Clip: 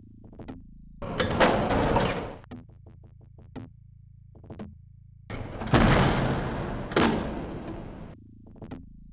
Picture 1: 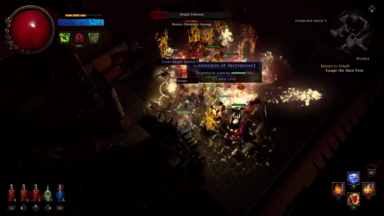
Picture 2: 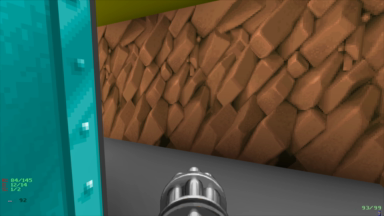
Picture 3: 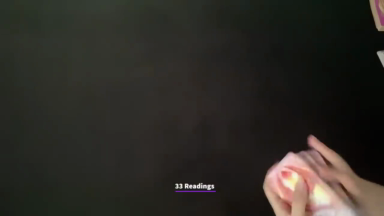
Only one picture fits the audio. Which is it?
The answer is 2